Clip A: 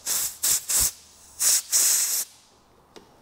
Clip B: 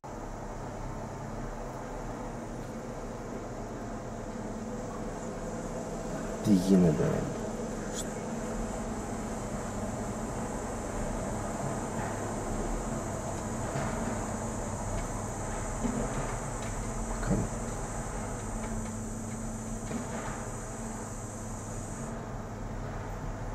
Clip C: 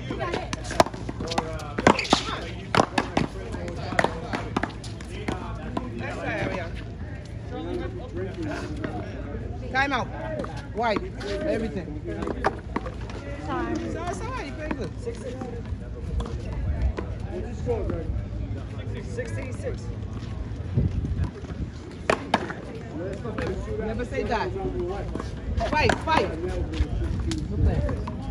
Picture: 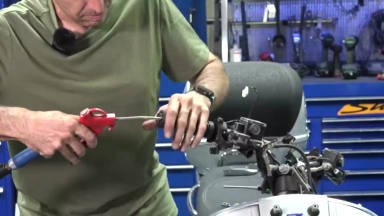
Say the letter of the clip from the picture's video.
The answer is A